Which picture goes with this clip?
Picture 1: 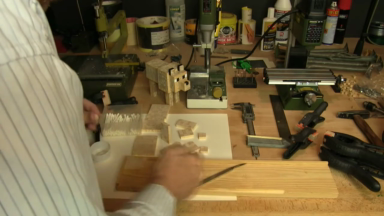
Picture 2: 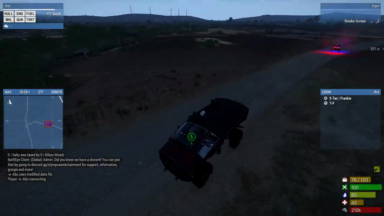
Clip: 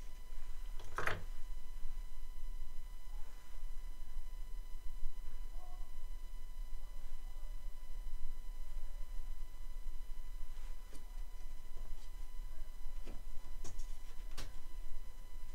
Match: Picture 1